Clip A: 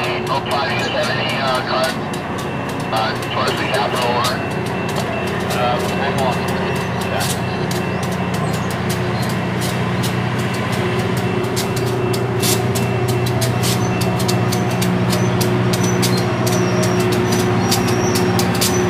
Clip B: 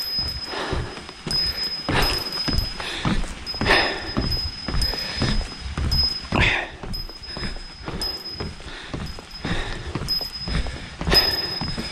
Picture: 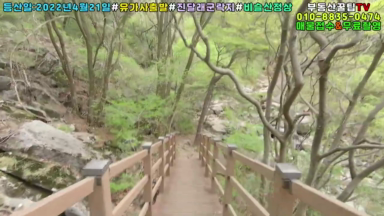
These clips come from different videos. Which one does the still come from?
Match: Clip B